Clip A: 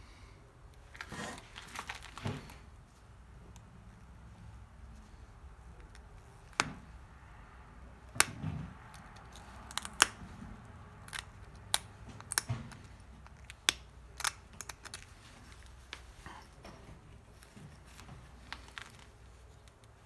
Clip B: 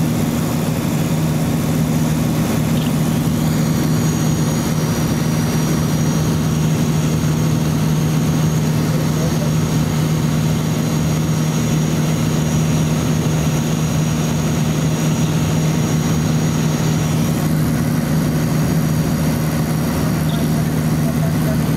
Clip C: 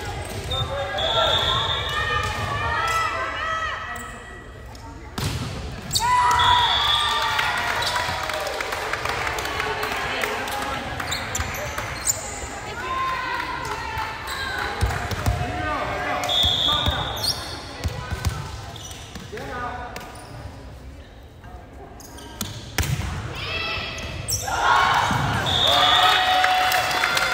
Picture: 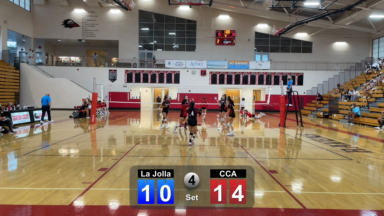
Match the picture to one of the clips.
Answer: C